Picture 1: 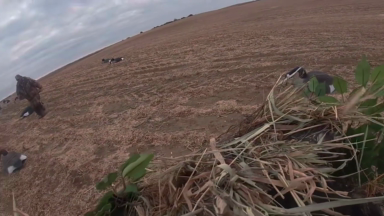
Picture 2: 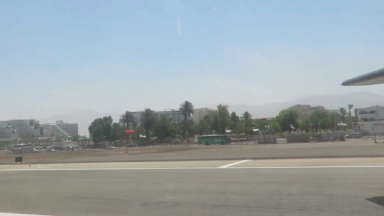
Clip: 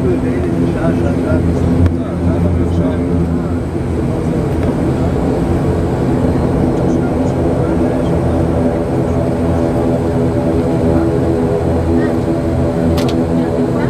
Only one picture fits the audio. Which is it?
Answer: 2